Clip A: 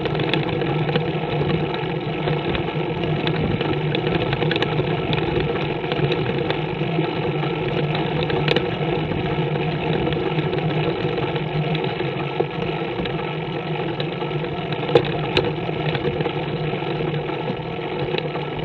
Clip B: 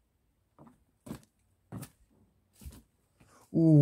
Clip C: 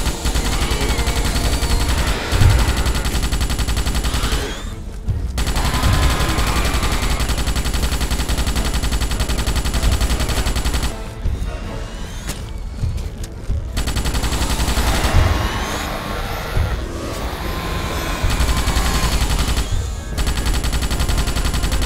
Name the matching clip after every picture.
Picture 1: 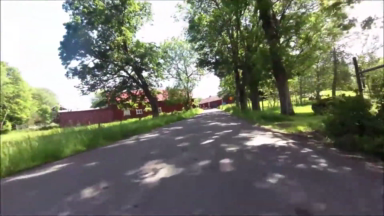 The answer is A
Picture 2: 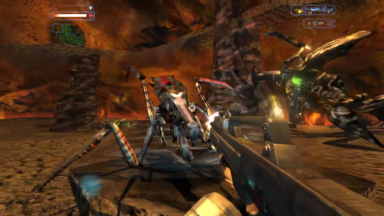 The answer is C